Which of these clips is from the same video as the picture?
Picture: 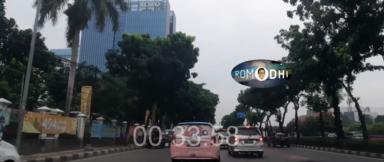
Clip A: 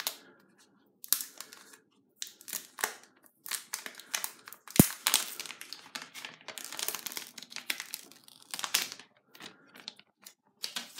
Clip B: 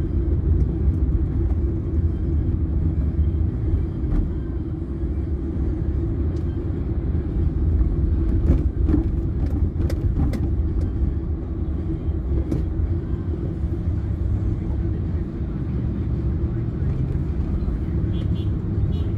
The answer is B